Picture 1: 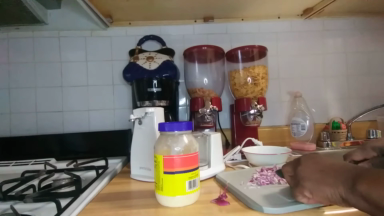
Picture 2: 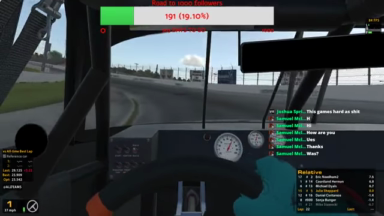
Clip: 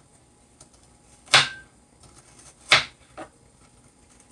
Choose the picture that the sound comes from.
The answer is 1